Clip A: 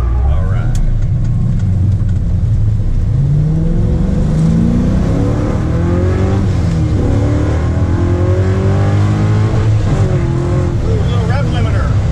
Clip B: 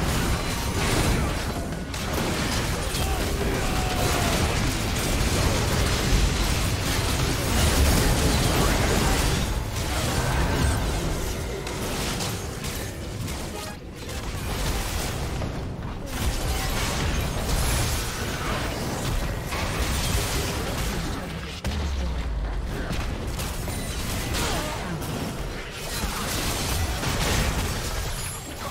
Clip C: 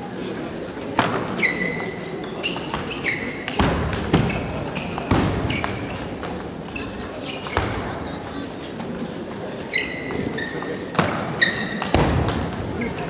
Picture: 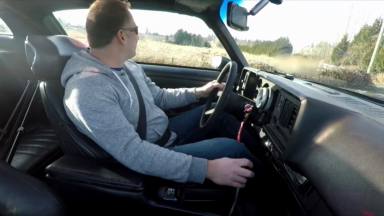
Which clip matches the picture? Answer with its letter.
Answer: A